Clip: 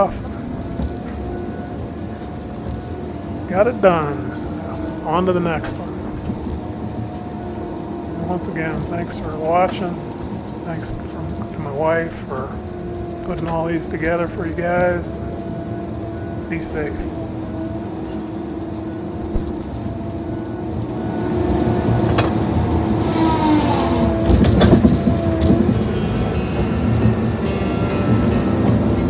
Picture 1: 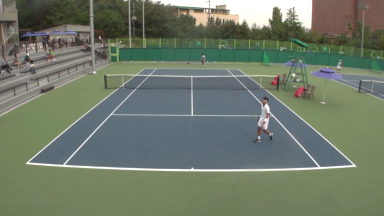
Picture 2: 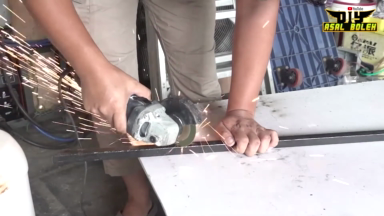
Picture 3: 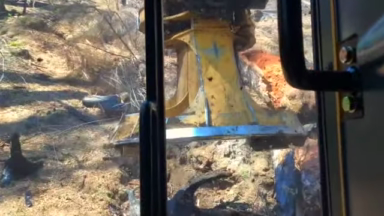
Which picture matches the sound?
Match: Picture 3